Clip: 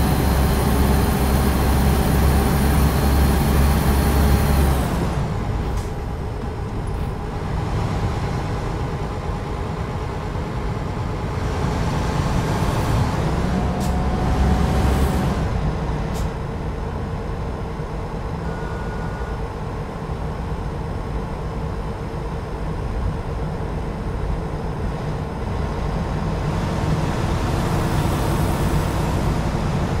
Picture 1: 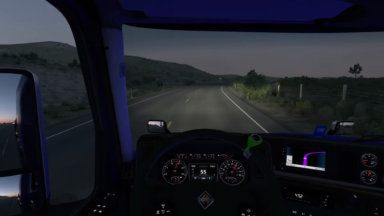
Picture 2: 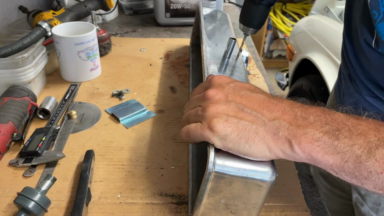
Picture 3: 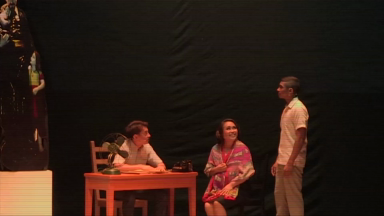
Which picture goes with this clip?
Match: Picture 1